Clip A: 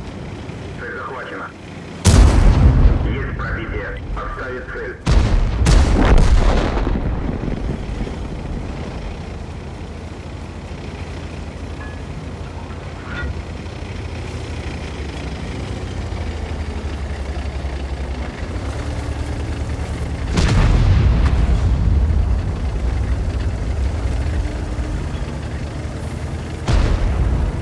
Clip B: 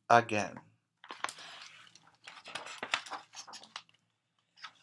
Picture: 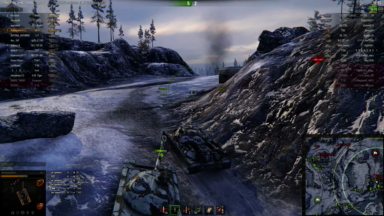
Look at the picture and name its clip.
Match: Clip A